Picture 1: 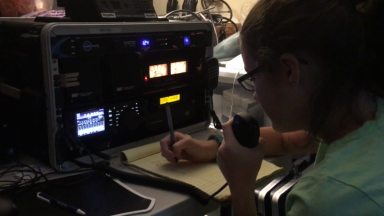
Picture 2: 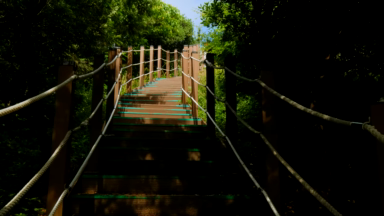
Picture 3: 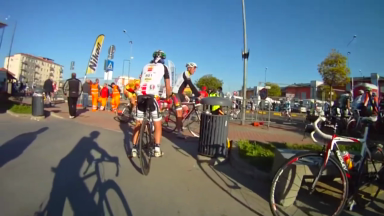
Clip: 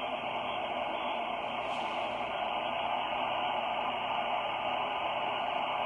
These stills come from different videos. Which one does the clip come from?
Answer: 1